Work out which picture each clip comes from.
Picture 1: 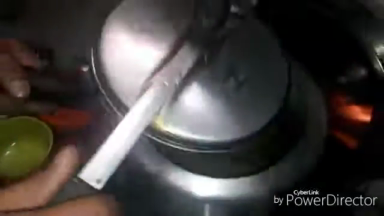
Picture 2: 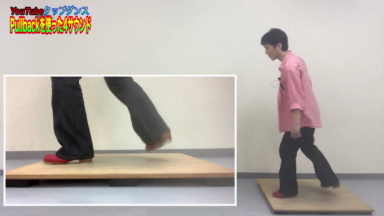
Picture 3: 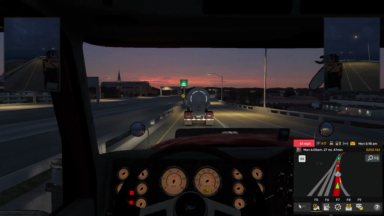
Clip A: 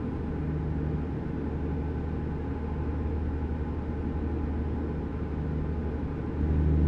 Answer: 3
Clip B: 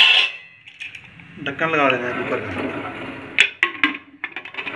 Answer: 1